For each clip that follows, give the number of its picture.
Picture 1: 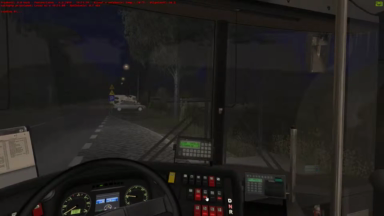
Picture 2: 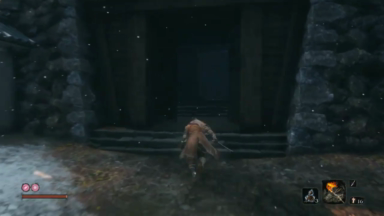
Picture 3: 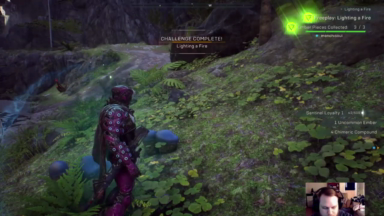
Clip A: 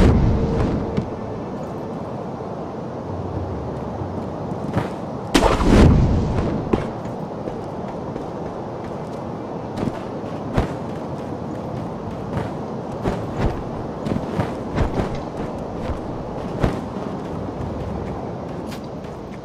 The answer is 2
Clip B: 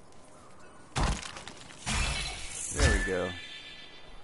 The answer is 3